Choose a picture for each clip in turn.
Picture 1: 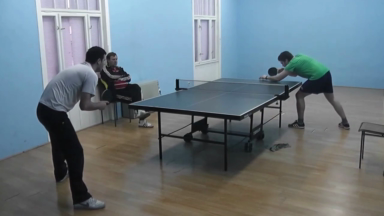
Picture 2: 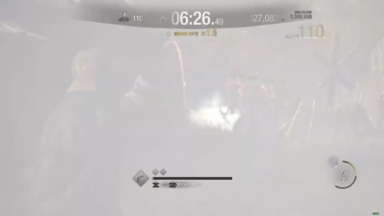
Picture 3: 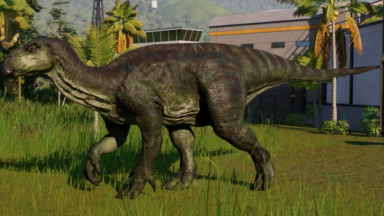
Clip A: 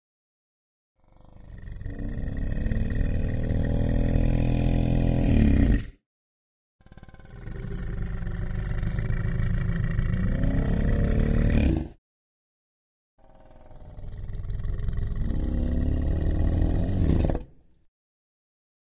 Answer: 3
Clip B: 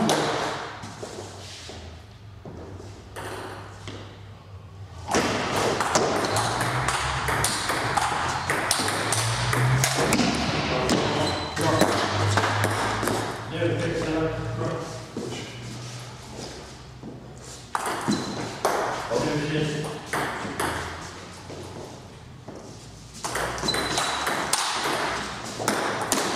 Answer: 1